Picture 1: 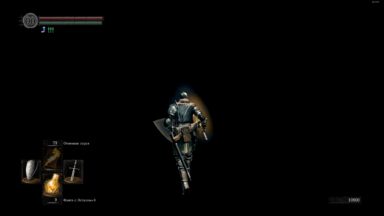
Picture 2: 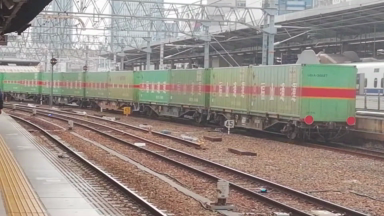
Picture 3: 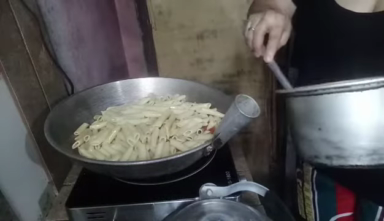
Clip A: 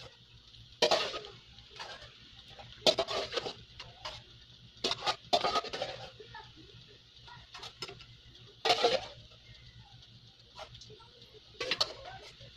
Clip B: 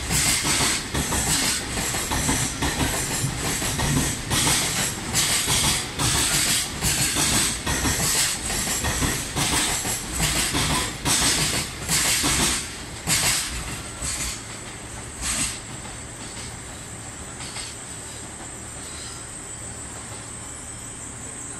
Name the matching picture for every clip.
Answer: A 3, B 2